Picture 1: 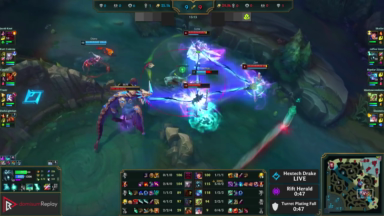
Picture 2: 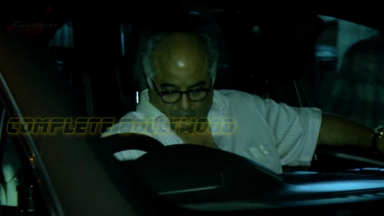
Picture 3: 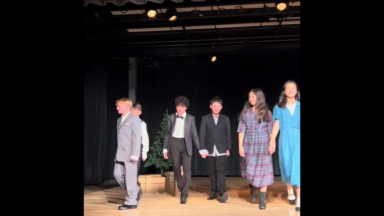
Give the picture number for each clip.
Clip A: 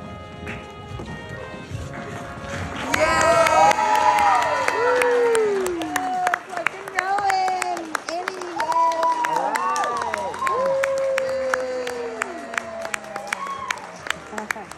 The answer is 3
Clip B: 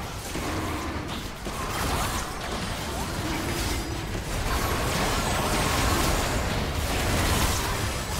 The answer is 1